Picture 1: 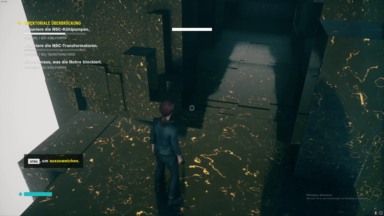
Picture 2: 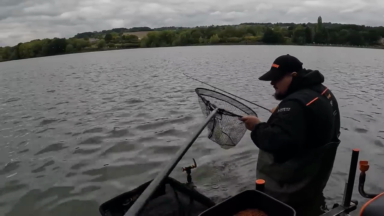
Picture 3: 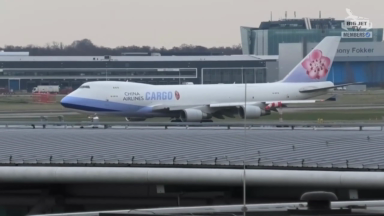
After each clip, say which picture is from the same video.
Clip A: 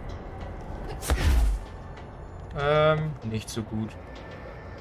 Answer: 1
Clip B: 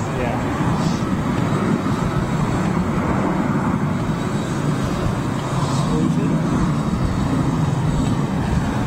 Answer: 3